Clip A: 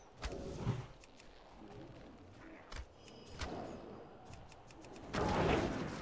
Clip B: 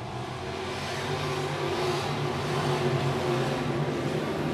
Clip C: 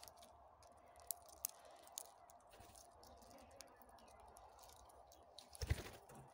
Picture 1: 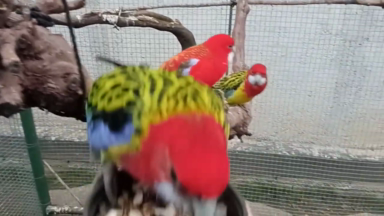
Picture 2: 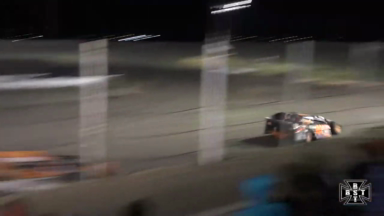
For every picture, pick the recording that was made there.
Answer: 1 C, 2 B